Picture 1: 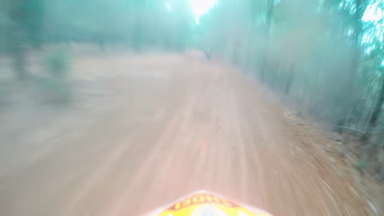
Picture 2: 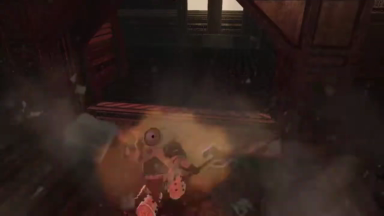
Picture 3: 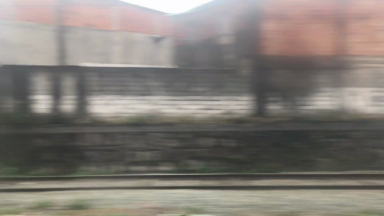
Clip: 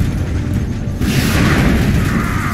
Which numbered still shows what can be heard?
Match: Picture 2